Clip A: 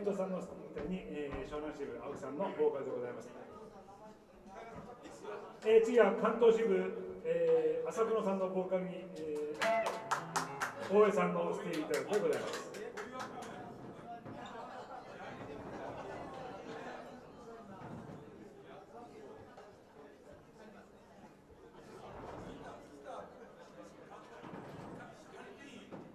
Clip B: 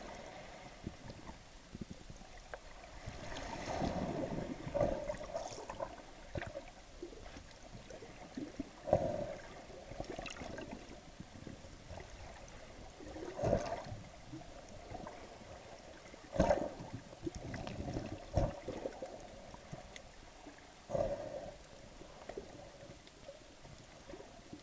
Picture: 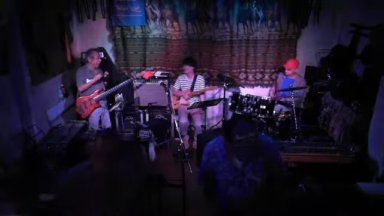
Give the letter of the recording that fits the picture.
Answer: A